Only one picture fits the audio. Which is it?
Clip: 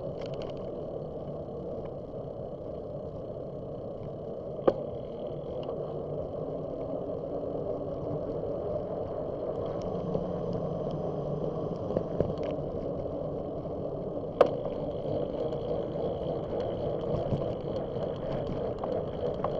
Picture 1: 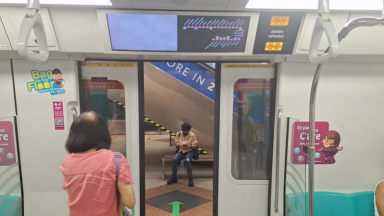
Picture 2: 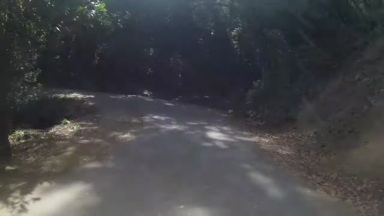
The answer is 2